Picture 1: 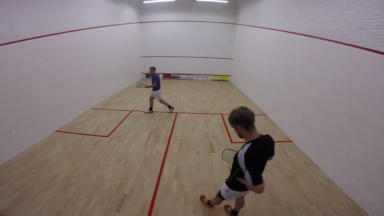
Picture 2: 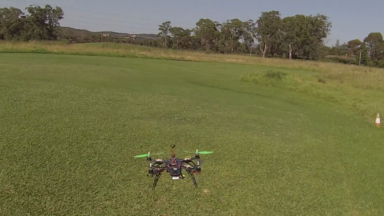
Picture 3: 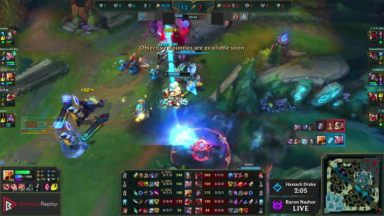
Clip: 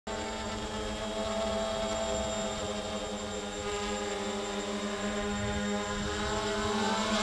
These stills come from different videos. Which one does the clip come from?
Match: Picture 2